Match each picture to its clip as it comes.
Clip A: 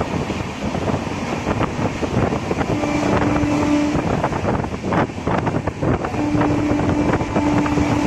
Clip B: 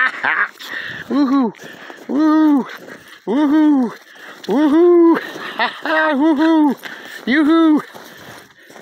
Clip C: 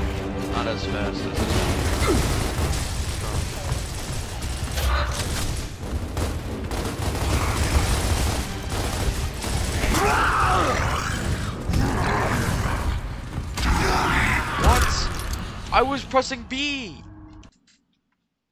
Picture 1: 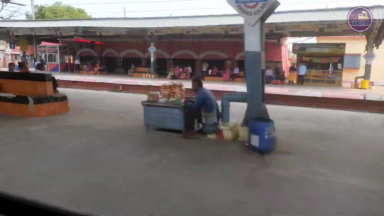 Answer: A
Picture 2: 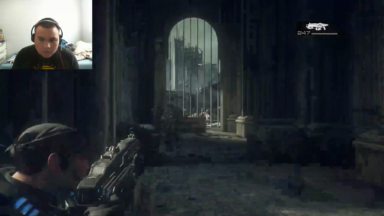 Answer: C